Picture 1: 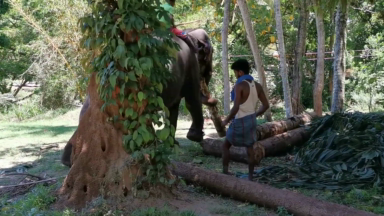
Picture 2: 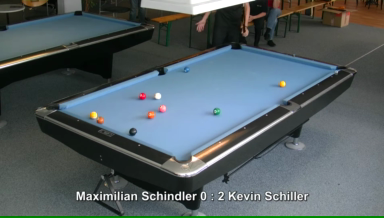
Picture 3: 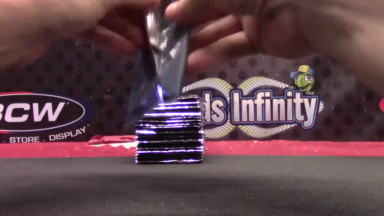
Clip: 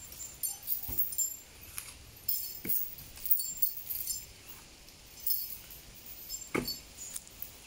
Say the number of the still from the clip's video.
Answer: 1